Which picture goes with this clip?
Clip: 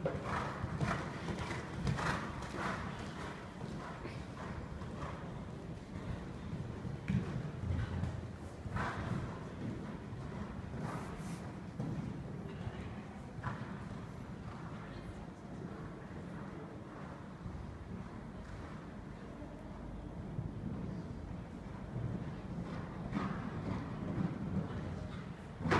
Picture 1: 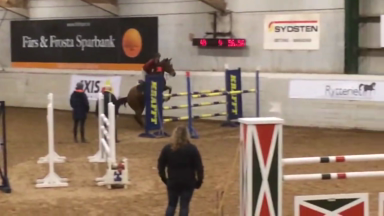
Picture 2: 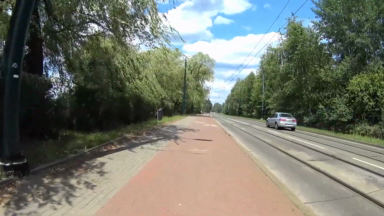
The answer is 1